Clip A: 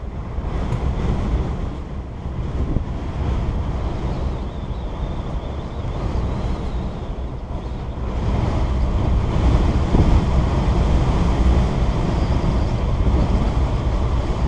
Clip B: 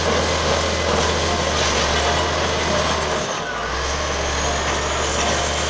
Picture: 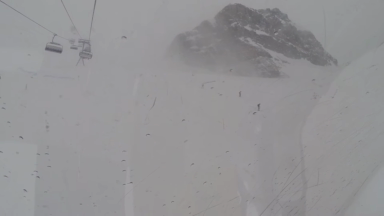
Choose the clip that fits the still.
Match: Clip A